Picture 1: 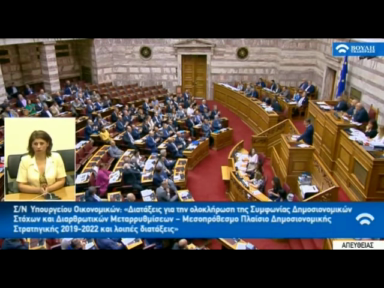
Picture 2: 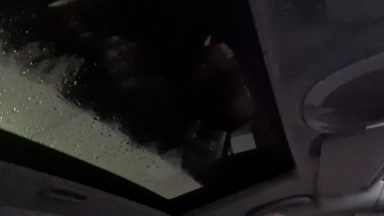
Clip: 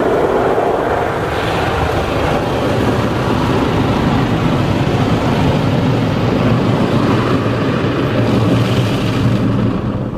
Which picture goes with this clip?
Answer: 2